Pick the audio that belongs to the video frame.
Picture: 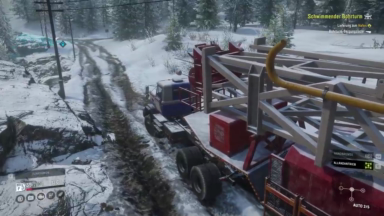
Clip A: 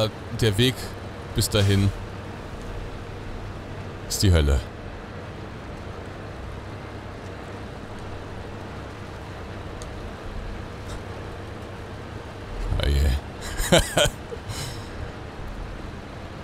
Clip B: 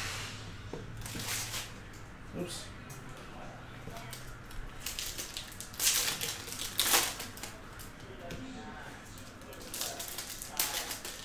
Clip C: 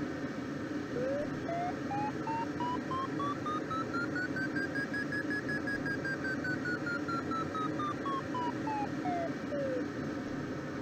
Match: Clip A